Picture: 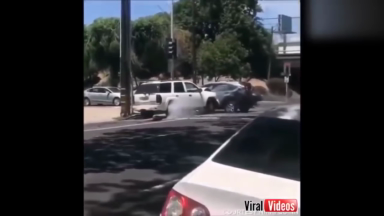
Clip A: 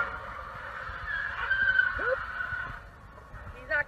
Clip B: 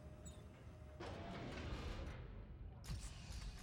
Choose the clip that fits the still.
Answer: A